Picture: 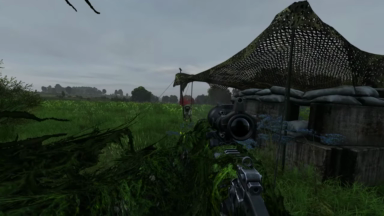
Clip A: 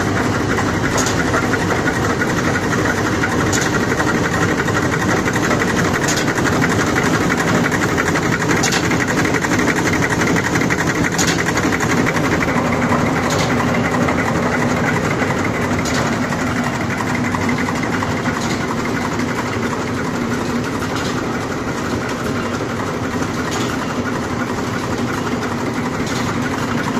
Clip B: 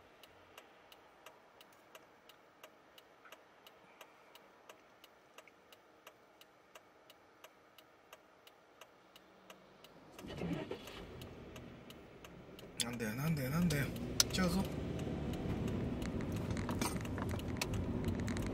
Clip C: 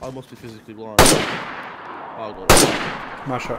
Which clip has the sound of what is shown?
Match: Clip C